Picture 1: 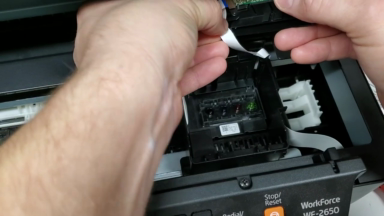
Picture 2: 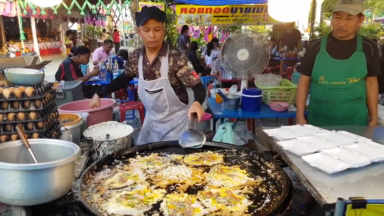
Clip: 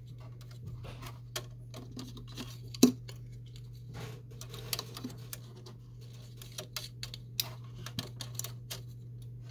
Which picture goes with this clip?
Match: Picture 1